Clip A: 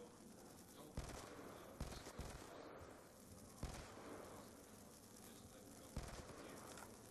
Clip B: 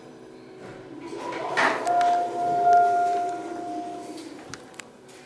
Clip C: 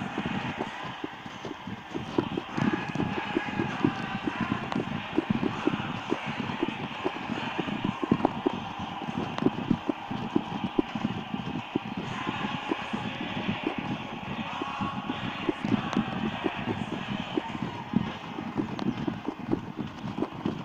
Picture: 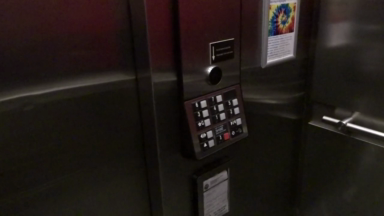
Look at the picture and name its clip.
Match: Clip B